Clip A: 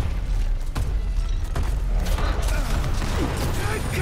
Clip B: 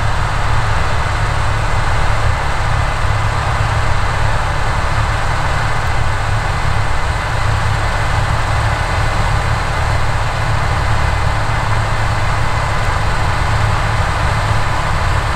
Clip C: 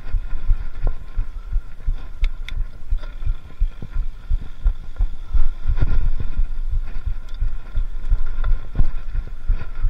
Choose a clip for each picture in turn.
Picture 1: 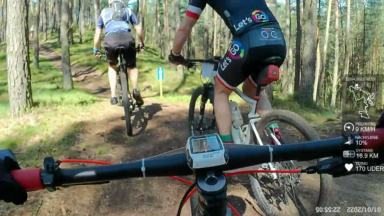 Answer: C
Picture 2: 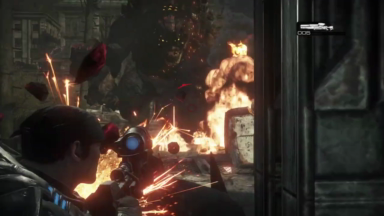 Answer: A